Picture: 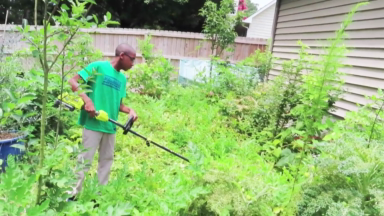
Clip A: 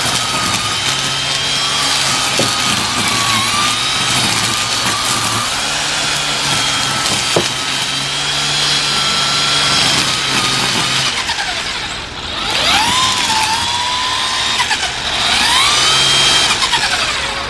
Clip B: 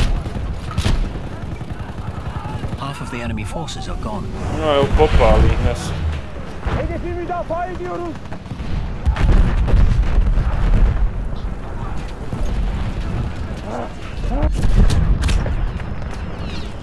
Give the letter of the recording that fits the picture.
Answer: A